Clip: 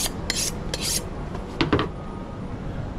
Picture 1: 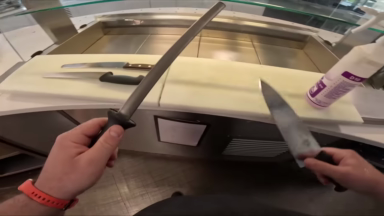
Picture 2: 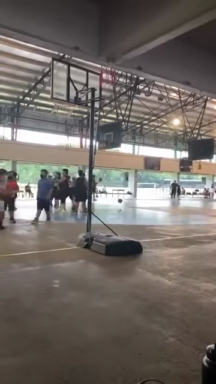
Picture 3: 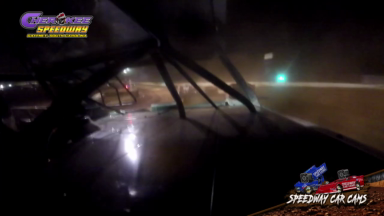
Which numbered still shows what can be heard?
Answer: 1